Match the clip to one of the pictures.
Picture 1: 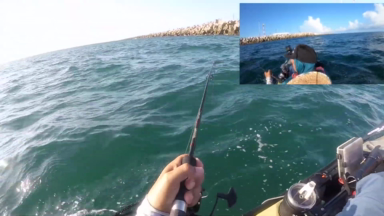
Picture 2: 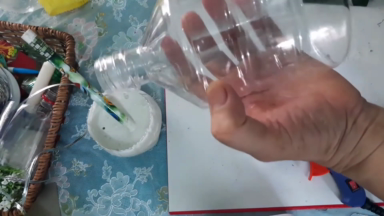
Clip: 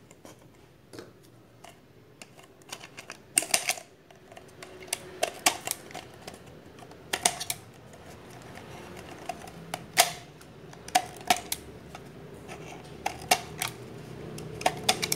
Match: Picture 2